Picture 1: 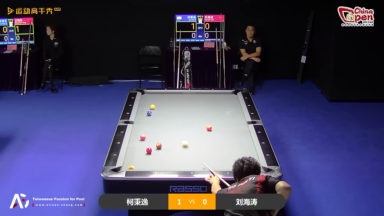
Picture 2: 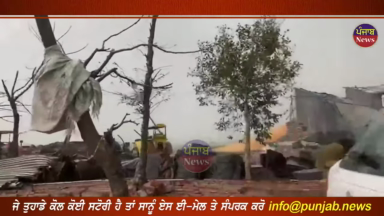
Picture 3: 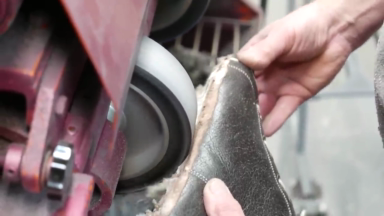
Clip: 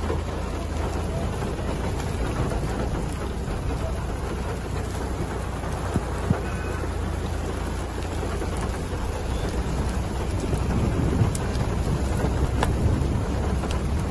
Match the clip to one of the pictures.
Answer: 2